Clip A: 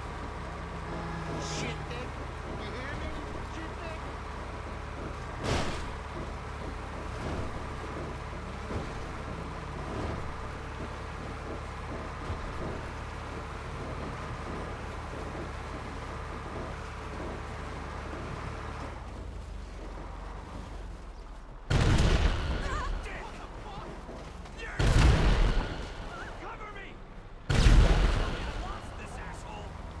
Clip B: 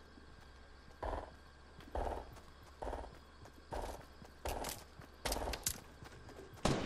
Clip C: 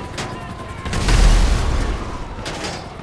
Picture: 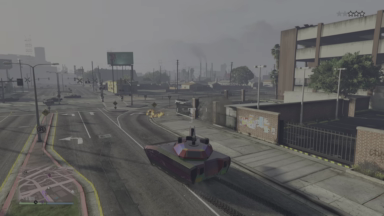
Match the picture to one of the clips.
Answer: A